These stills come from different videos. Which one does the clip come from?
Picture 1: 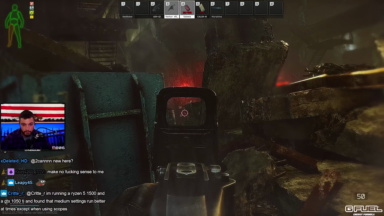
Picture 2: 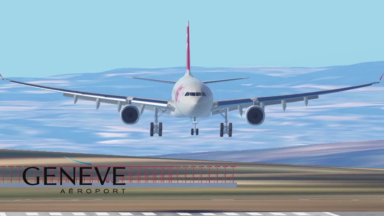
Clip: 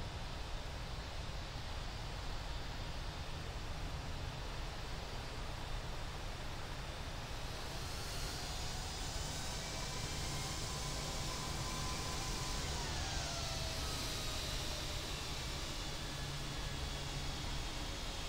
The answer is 2